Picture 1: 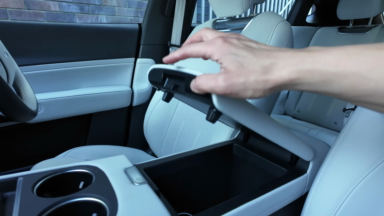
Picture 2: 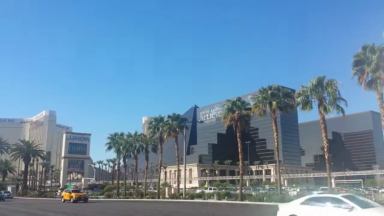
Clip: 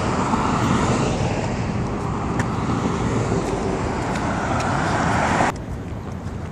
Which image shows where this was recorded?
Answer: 2